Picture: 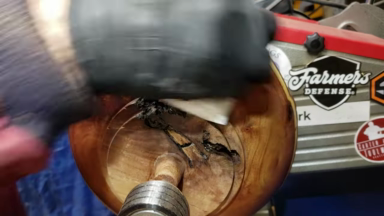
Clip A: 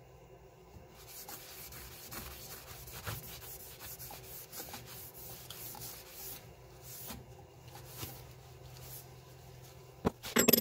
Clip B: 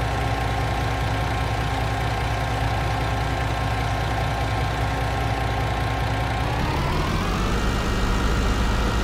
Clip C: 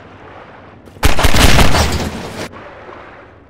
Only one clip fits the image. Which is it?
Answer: A